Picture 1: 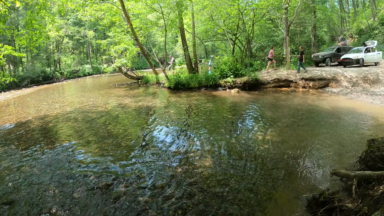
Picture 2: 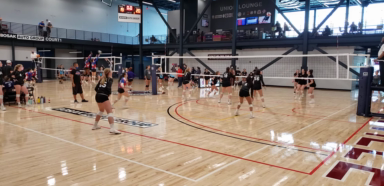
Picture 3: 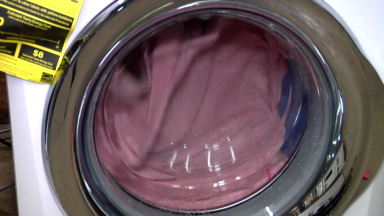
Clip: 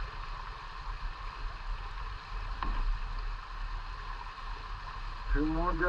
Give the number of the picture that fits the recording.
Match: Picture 1